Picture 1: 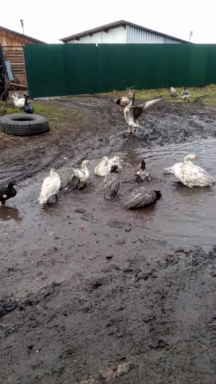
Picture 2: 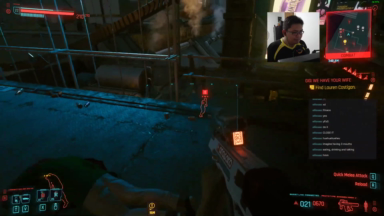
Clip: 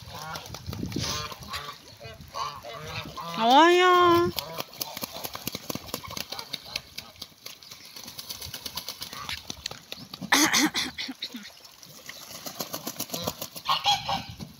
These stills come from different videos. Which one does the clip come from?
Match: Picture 1